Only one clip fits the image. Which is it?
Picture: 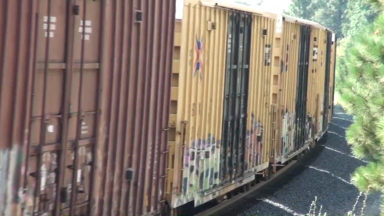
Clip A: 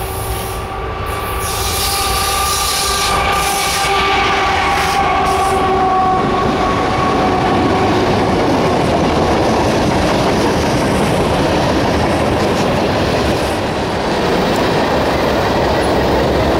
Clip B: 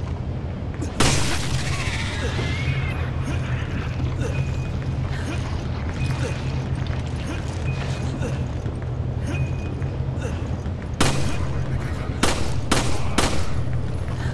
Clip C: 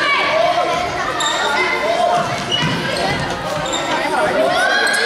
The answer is A